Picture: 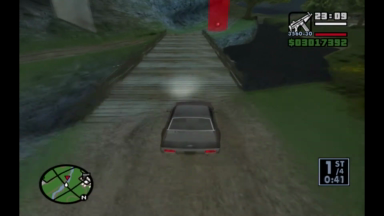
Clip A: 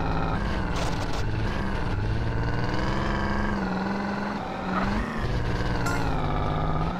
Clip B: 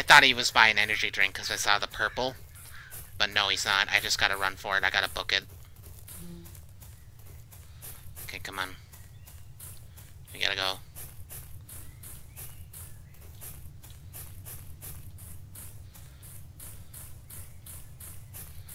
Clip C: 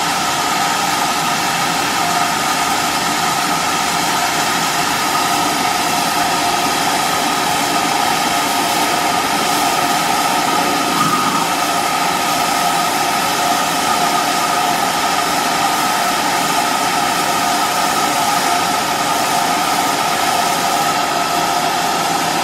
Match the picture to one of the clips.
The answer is A